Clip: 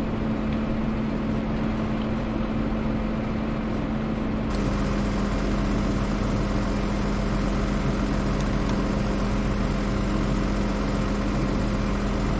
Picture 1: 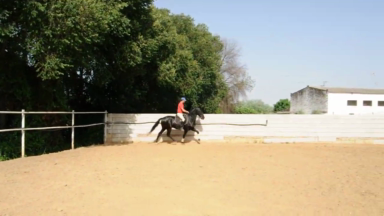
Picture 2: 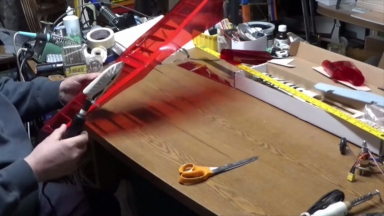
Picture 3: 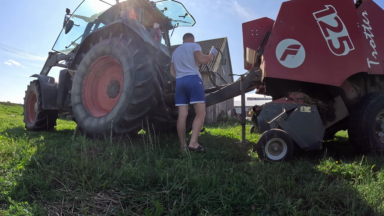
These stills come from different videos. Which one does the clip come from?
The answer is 3